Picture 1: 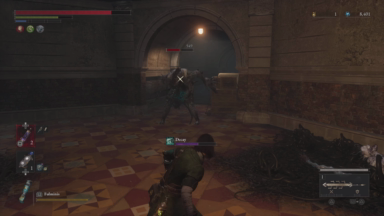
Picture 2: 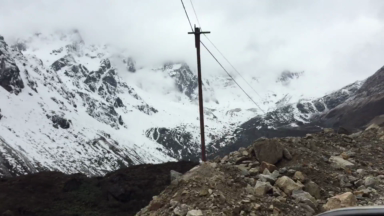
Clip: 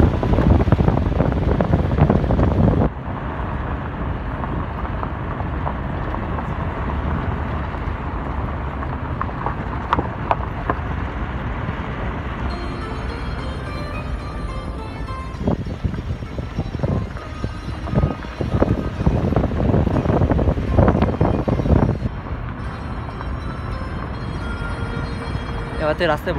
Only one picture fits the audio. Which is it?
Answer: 2